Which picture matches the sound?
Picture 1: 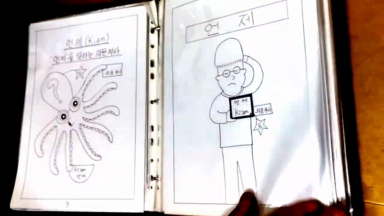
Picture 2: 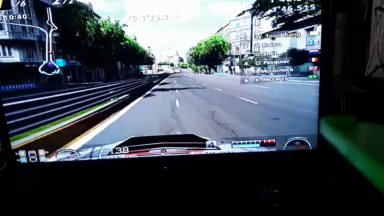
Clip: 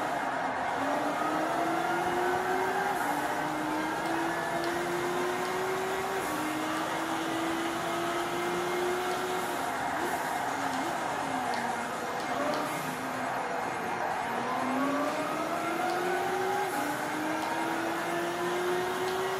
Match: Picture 2